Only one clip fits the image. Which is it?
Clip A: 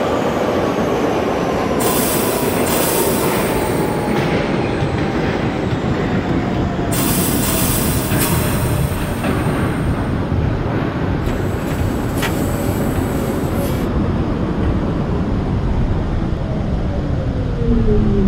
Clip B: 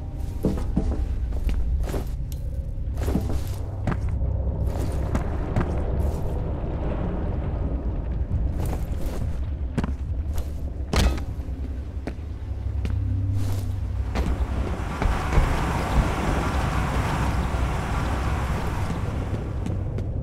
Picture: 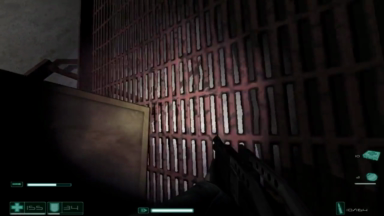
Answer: B